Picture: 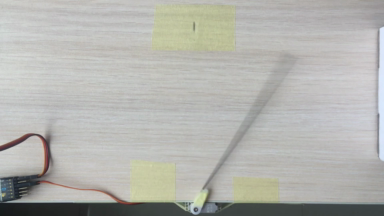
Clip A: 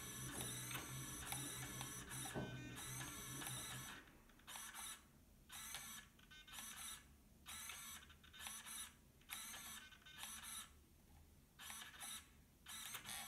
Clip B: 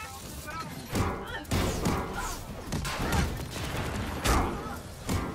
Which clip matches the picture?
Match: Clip A